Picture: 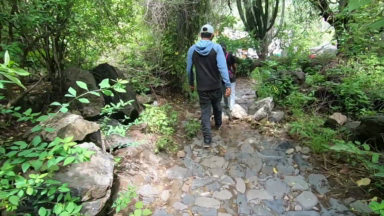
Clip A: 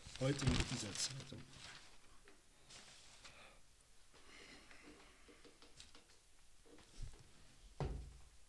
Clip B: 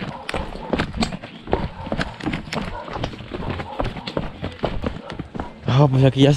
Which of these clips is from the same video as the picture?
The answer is B